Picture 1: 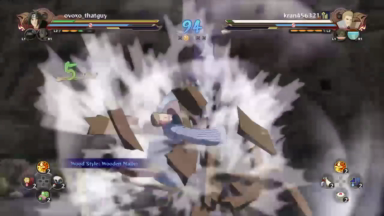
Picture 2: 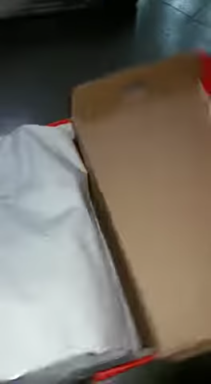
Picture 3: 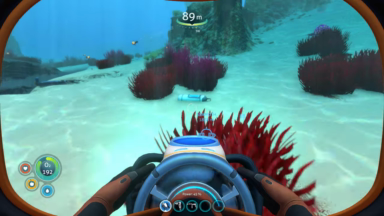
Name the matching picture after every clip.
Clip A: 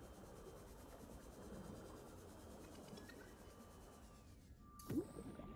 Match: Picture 3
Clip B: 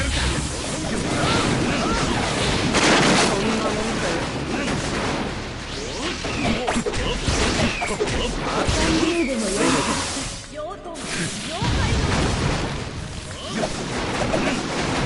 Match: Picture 1